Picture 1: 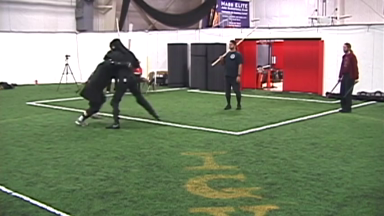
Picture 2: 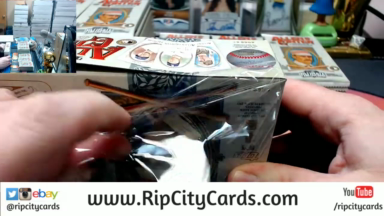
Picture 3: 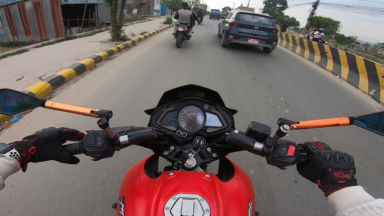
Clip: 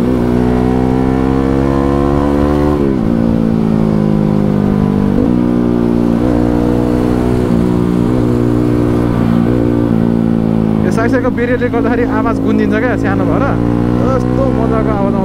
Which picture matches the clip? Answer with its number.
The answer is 3